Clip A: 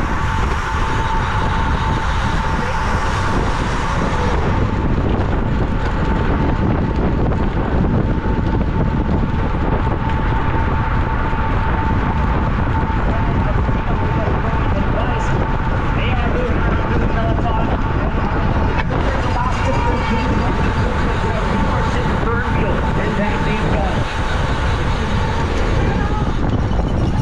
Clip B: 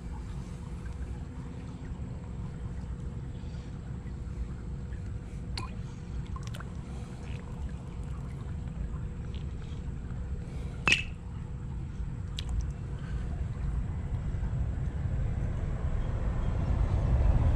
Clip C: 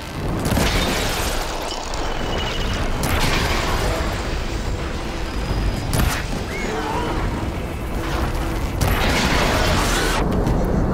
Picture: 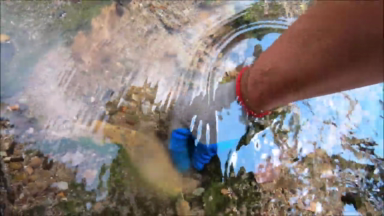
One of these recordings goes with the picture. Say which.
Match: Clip B